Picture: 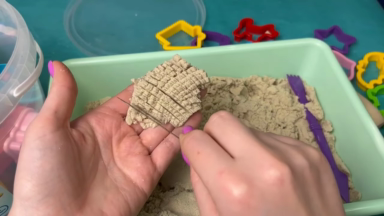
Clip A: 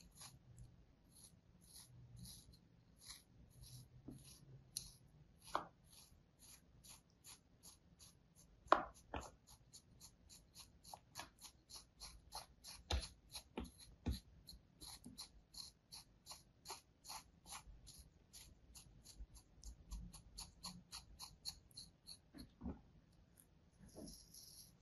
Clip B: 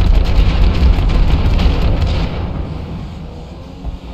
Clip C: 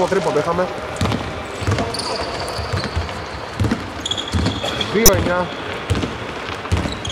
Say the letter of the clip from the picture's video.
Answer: A